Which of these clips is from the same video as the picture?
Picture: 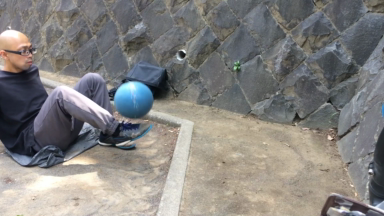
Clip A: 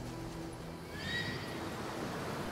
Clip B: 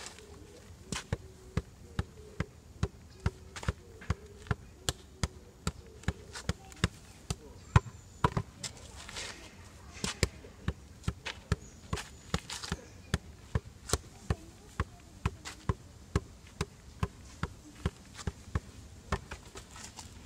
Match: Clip B